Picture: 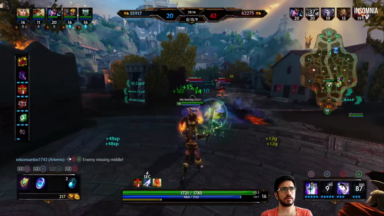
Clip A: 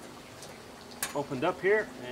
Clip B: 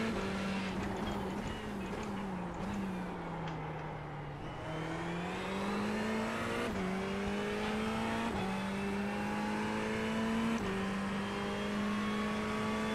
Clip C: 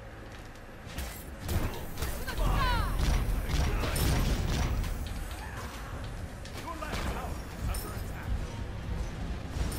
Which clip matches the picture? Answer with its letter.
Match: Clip C